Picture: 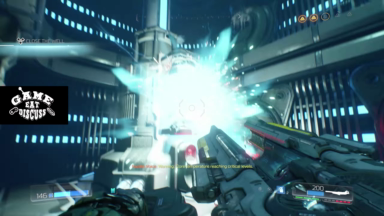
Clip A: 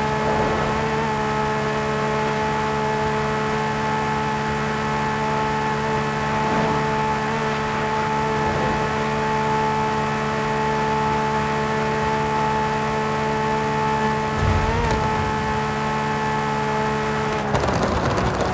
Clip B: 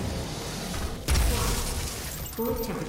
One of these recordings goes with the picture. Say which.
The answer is B